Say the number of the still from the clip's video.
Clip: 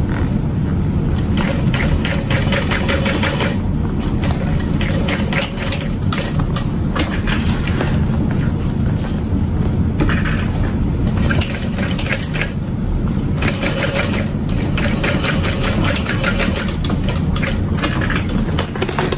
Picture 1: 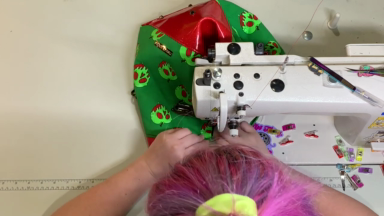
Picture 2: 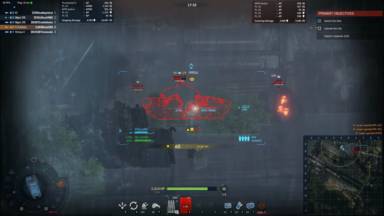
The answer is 1